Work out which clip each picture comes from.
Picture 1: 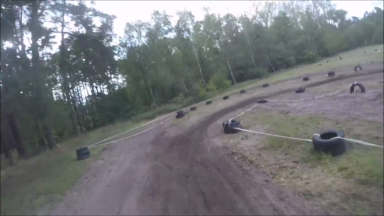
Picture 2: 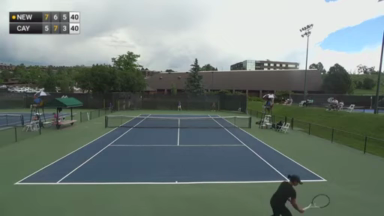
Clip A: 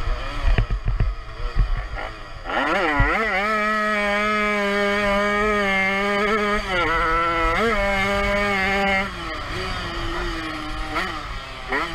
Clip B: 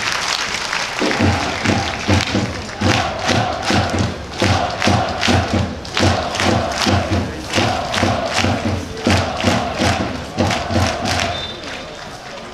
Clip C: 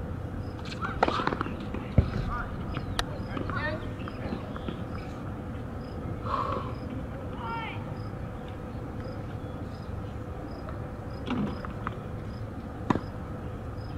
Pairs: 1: A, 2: C